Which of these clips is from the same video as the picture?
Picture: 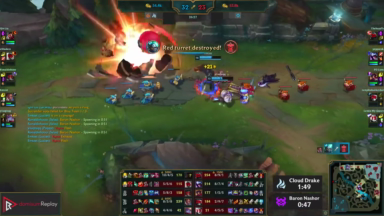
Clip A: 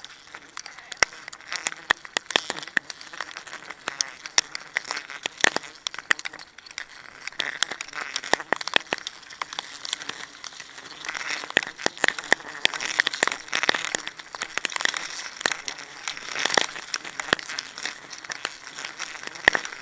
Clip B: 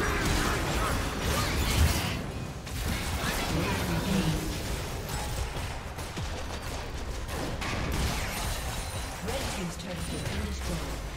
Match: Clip B